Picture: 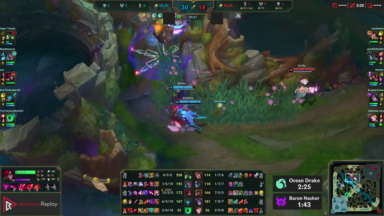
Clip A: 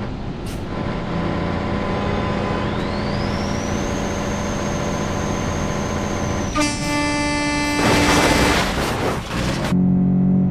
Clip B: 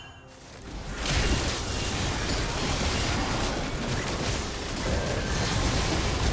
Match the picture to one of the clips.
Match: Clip B